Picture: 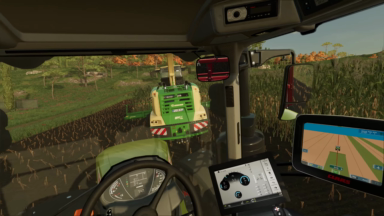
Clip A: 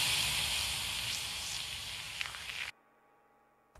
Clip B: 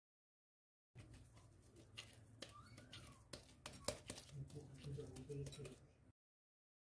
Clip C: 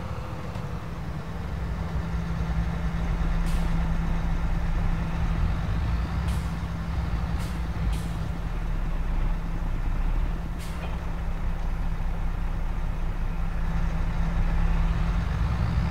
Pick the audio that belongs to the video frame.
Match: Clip C